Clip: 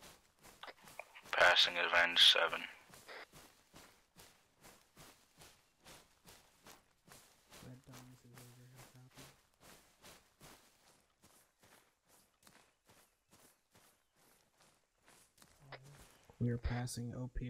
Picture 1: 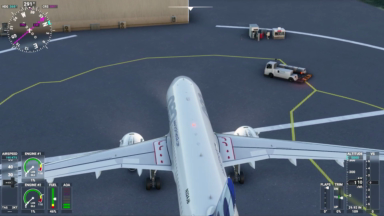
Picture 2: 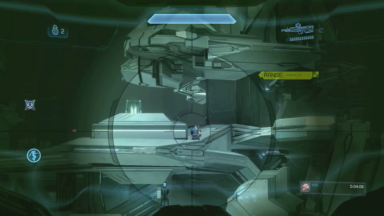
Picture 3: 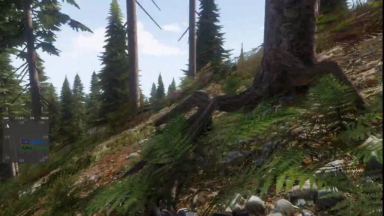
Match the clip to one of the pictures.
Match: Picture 3